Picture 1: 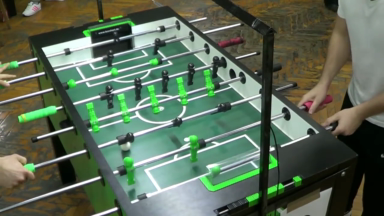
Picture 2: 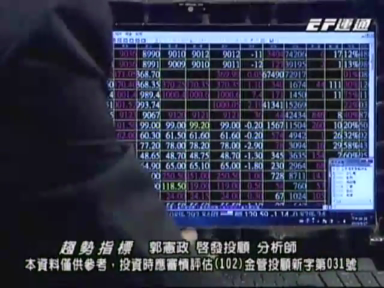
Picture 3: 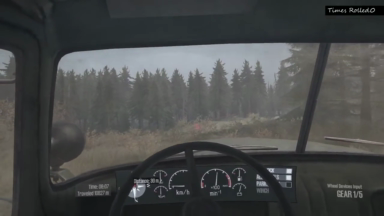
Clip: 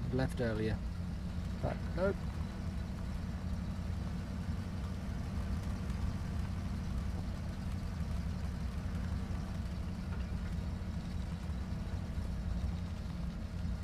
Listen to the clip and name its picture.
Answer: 3